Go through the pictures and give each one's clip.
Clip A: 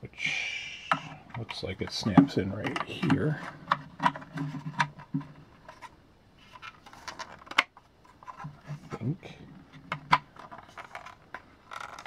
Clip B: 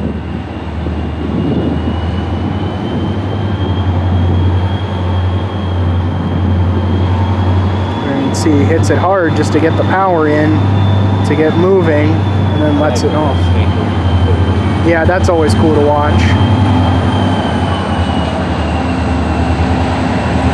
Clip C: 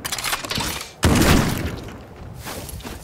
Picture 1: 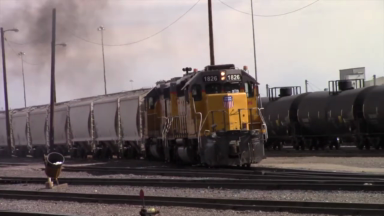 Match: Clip B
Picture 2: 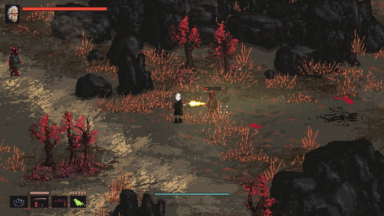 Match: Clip C